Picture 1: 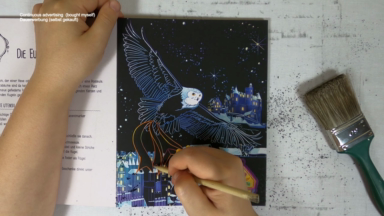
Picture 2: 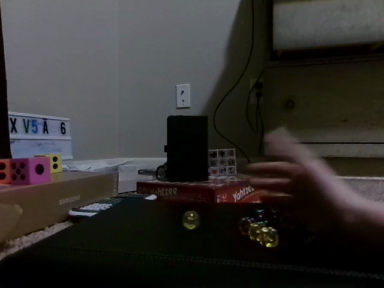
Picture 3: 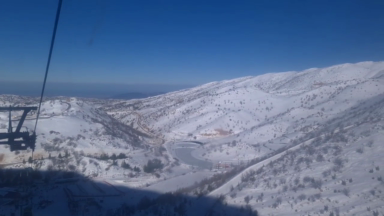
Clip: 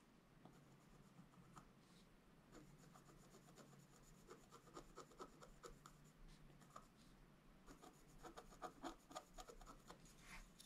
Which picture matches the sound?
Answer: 1